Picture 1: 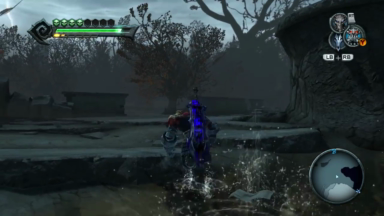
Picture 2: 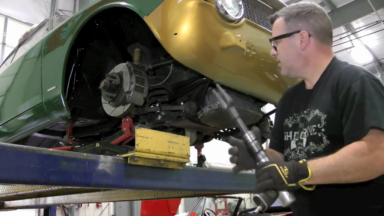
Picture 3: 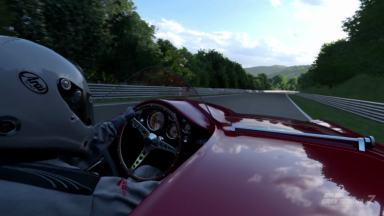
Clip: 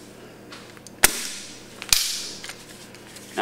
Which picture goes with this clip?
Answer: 2